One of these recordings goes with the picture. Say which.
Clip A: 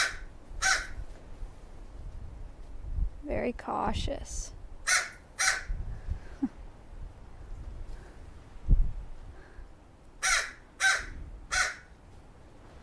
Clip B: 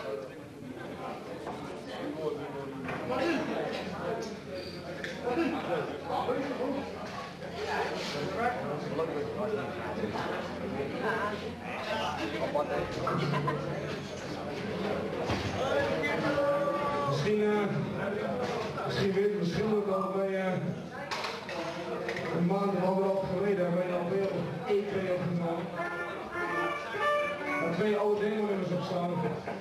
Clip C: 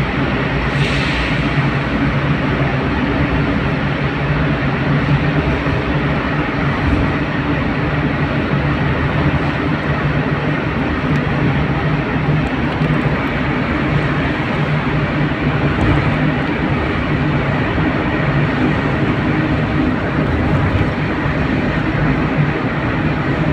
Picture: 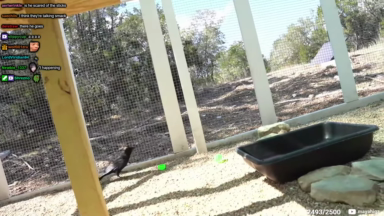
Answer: A